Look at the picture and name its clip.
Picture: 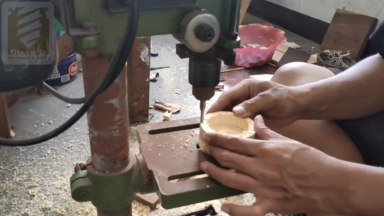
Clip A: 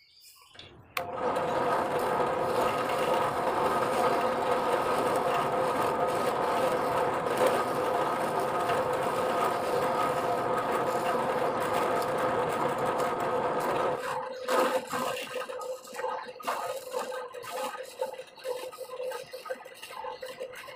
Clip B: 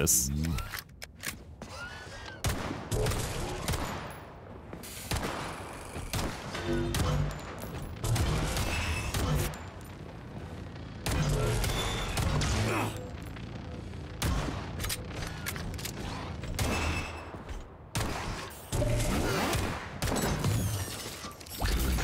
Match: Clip A